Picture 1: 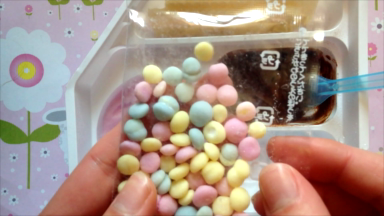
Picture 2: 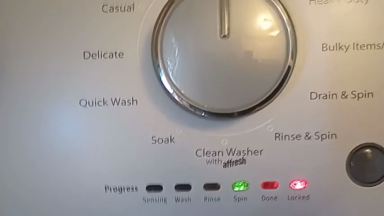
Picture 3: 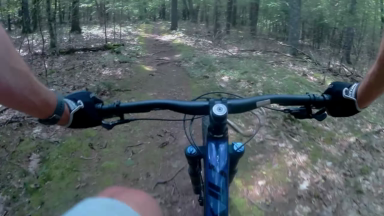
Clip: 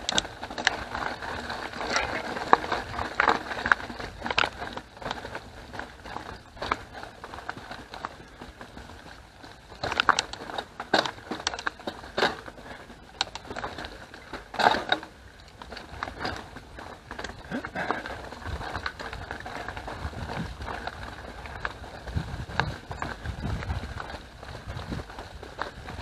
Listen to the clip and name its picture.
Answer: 3